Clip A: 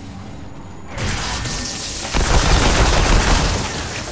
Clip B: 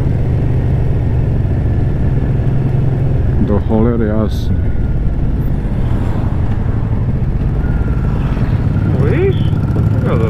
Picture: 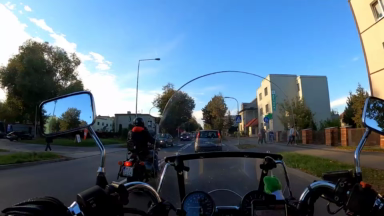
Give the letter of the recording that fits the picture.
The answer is B